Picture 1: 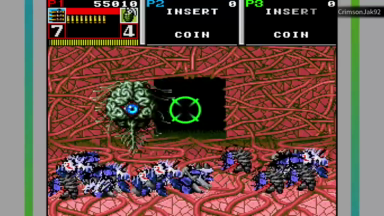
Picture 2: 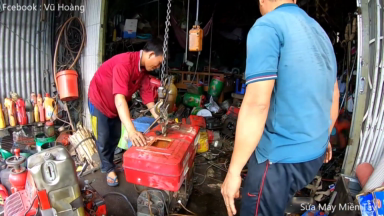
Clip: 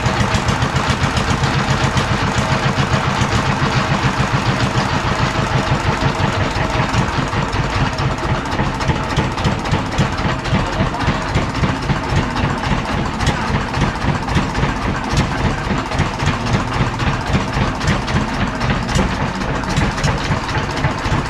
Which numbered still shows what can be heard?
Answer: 2